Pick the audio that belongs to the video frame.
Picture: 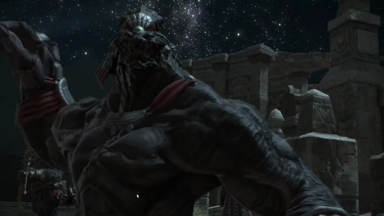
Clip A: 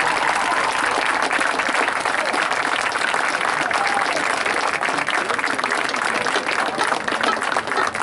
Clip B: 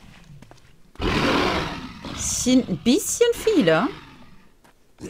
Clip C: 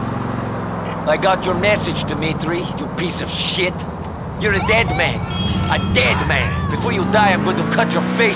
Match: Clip B